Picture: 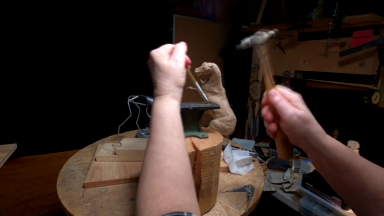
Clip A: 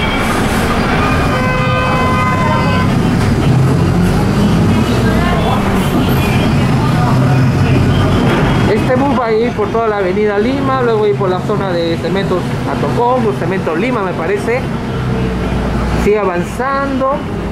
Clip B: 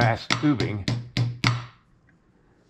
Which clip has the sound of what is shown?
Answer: B